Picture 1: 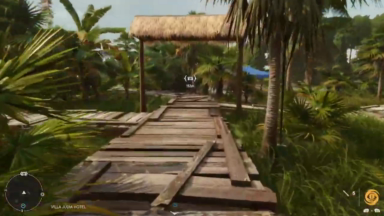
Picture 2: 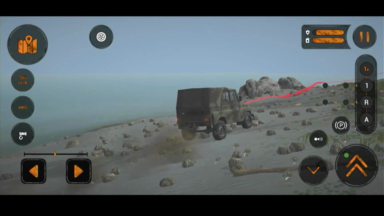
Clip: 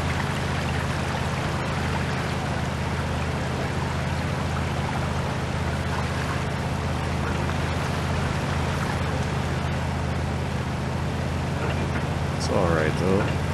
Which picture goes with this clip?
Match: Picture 2